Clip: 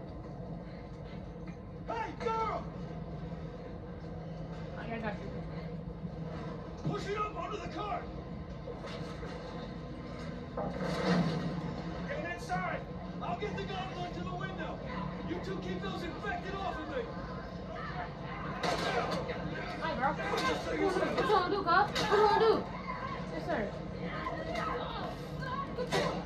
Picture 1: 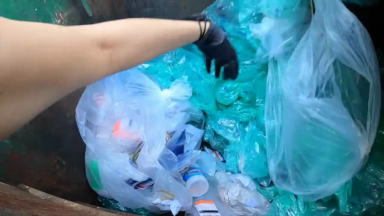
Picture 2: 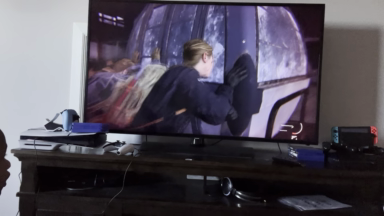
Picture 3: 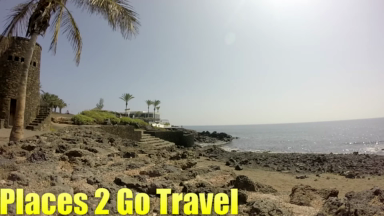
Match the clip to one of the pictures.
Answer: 2